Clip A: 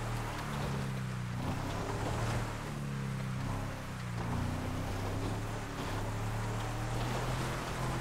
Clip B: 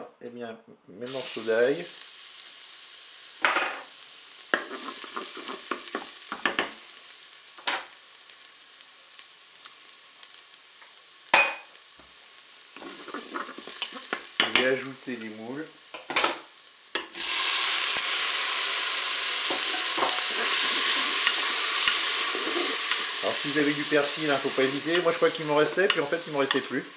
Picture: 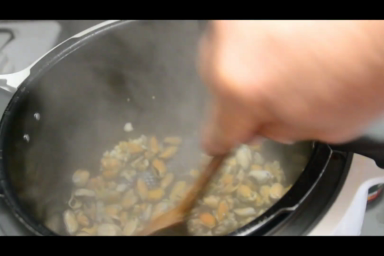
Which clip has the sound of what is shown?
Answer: B